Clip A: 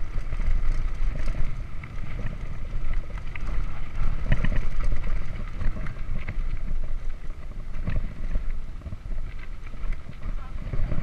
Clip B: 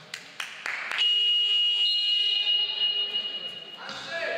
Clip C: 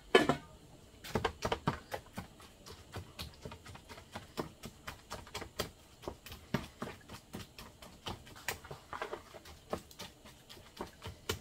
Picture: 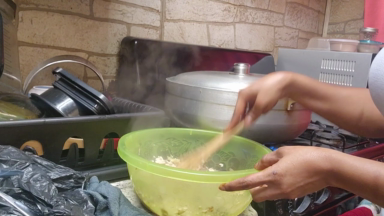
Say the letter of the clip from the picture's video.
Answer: C